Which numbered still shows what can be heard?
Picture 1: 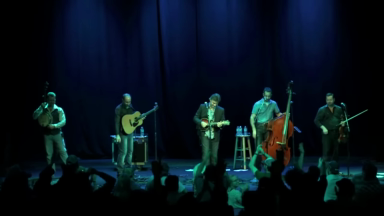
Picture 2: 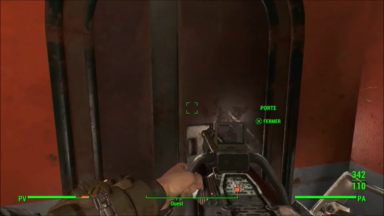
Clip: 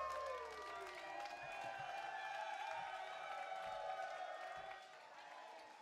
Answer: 1